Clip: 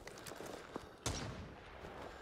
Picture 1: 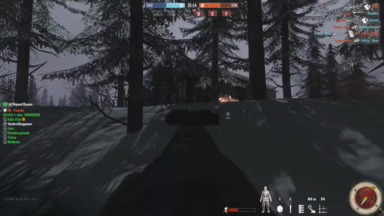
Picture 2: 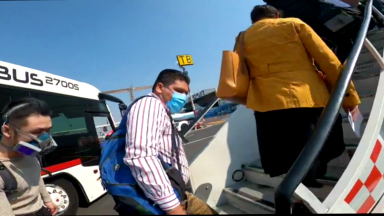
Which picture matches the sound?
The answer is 1